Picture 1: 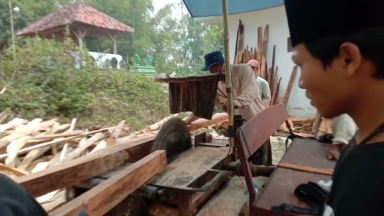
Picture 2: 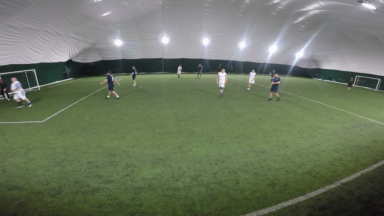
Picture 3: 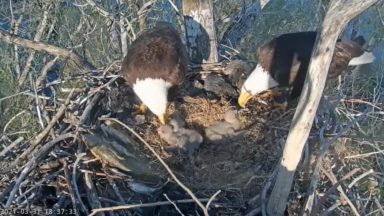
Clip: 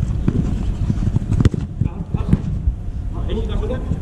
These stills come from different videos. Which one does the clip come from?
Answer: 2